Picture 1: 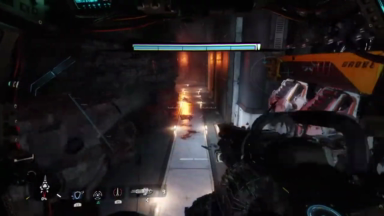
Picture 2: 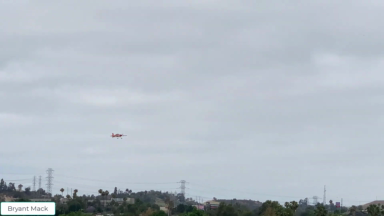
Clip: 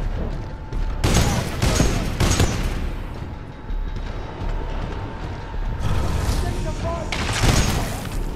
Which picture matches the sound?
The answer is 1